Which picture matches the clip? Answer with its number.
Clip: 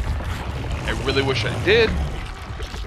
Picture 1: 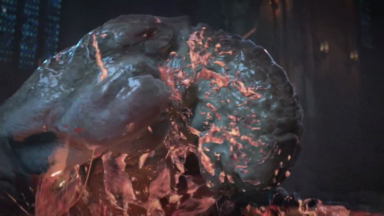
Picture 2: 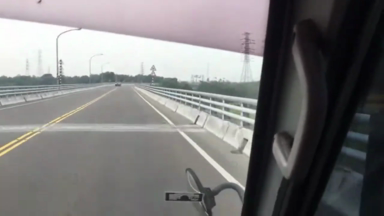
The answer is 1